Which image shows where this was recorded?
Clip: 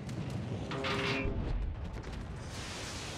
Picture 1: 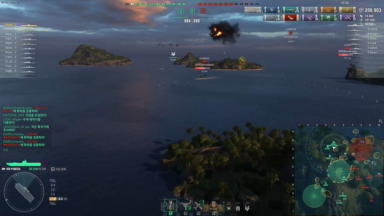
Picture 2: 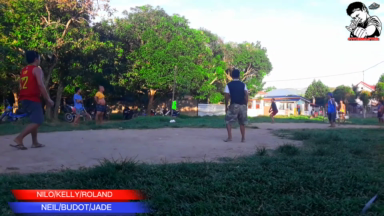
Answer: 1